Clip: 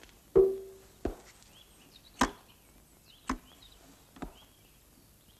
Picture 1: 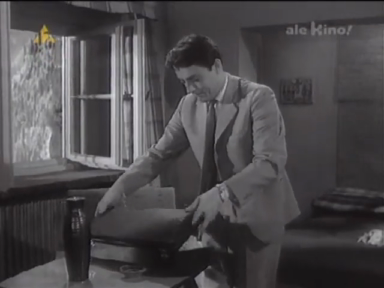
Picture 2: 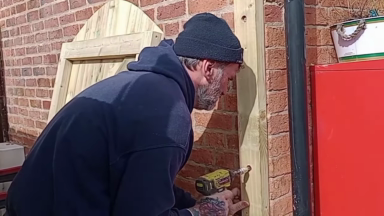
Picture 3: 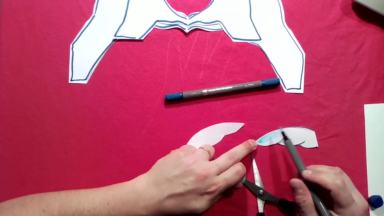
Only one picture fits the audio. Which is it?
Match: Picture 1